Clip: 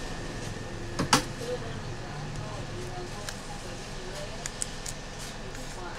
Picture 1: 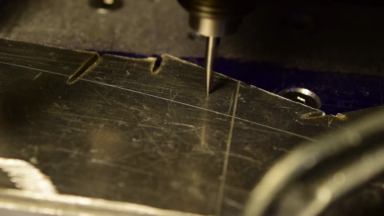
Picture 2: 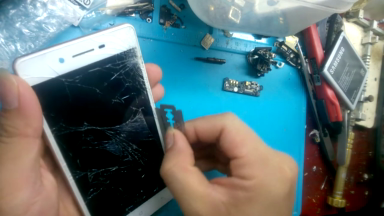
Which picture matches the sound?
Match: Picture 2